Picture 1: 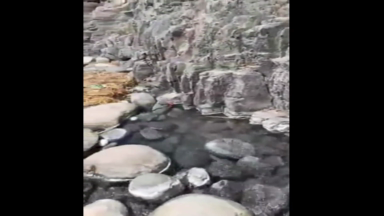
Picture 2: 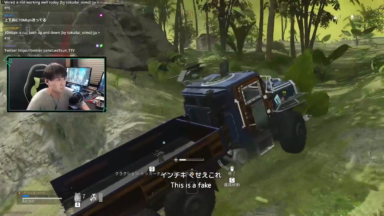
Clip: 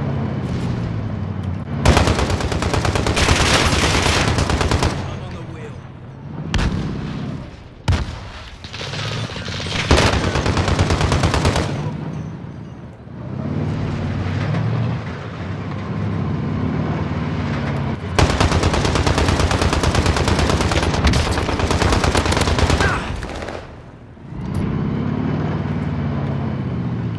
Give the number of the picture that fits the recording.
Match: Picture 2